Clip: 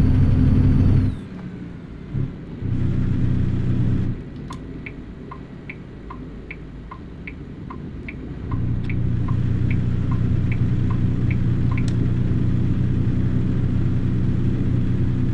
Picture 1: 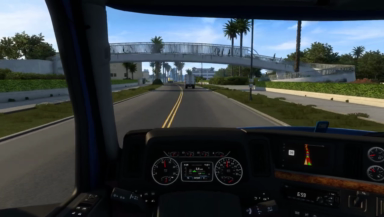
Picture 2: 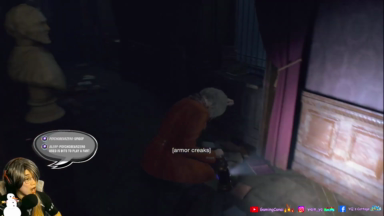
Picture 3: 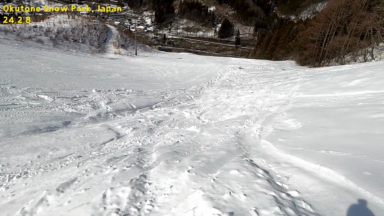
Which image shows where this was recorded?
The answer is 1